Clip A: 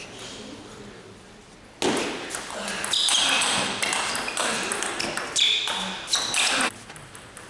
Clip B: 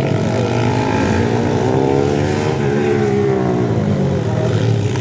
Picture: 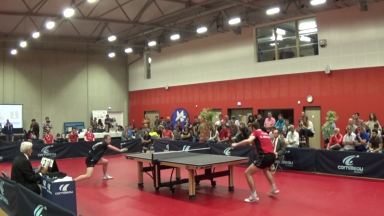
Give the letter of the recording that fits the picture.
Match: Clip A